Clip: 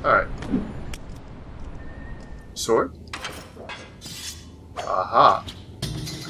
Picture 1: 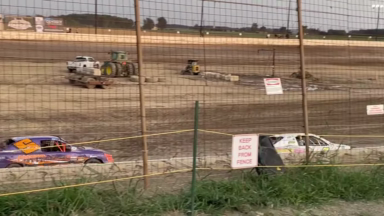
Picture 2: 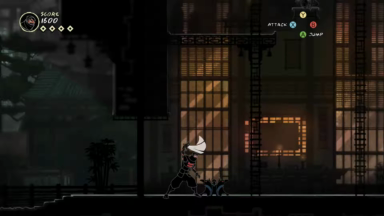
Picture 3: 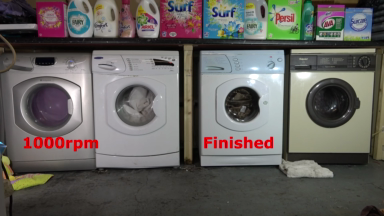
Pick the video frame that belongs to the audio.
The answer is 2